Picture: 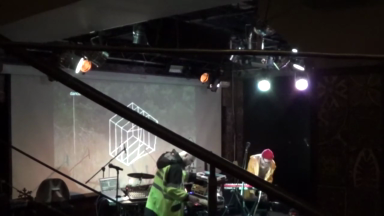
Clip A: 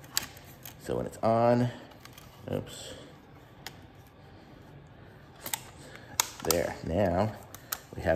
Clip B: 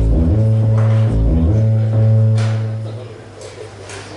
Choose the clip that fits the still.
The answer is B